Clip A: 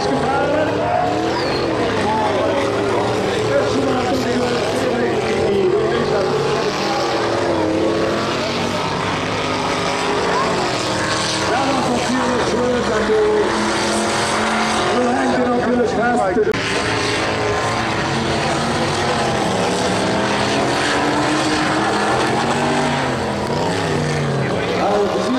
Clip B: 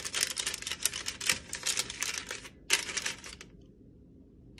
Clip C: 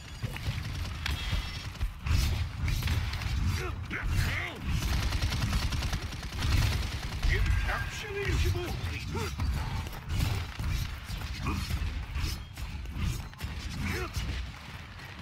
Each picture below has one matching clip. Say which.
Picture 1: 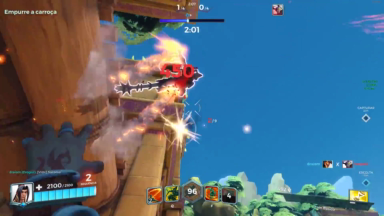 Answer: C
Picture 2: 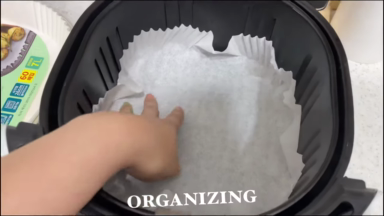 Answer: B